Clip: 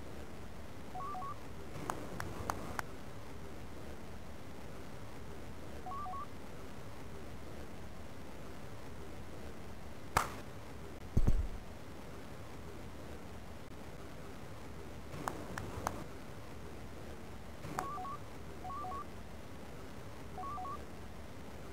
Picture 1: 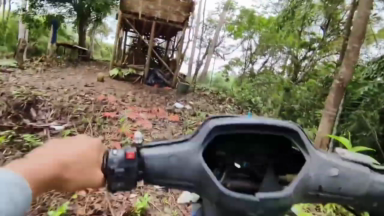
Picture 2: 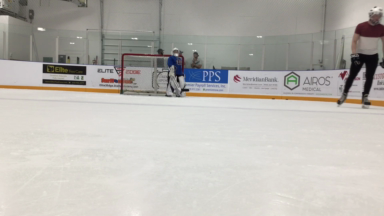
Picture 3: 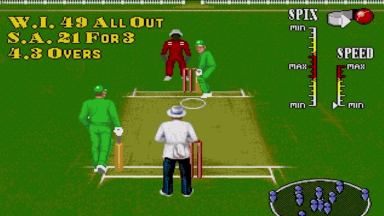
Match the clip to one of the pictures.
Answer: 3